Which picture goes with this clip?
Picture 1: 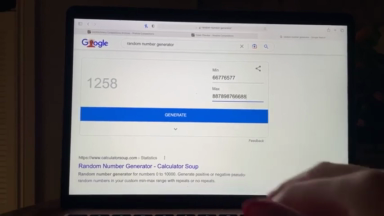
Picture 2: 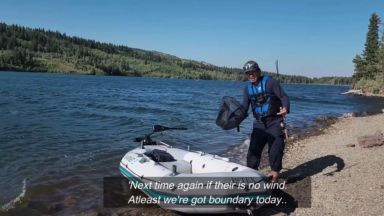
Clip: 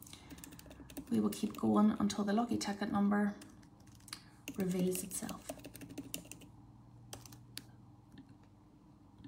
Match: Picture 1